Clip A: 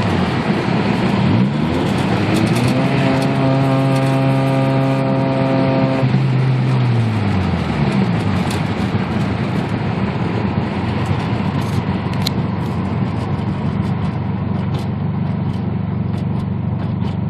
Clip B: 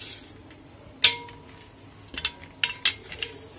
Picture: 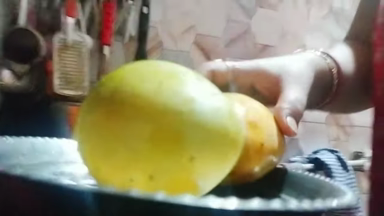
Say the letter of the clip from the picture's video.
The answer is B